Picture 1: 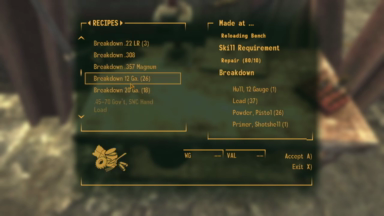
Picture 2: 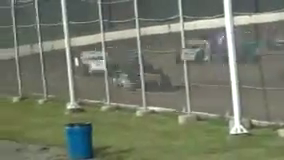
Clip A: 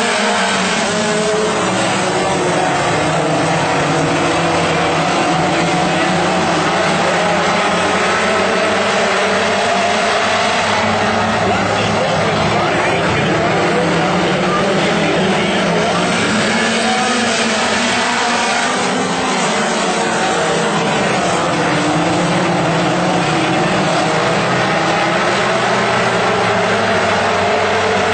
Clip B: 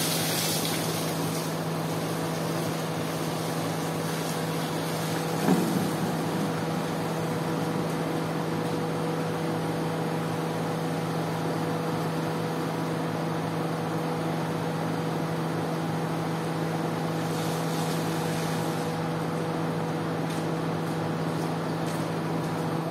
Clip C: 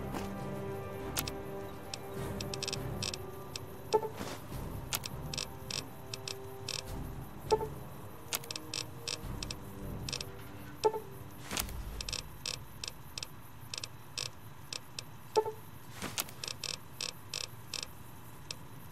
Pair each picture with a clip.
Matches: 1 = C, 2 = A